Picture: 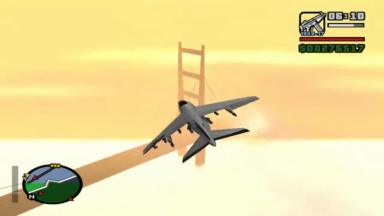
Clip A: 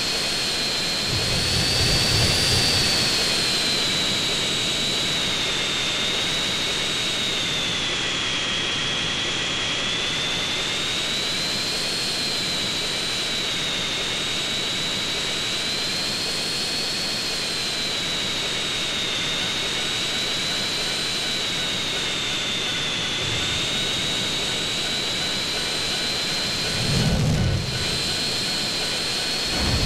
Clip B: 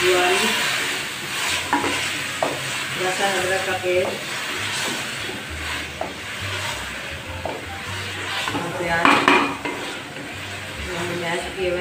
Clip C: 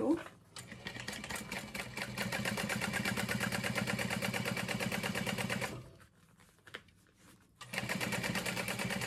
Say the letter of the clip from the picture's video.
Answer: A